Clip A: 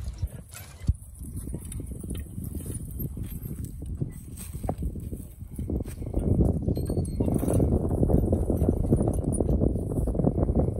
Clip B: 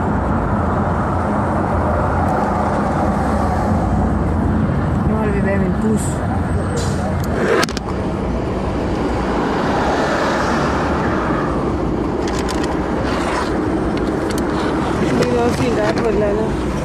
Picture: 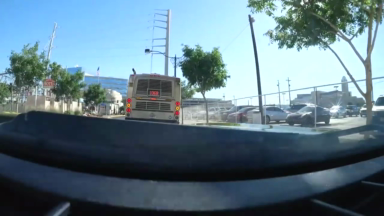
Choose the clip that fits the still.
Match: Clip B